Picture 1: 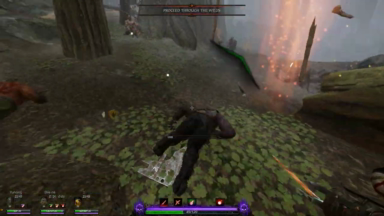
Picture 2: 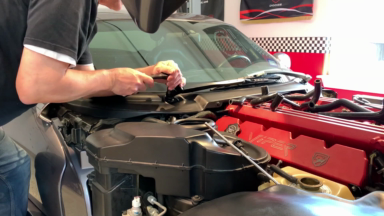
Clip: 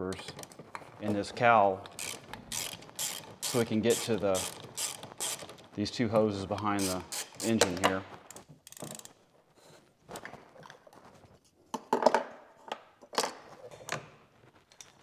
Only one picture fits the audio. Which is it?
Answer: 2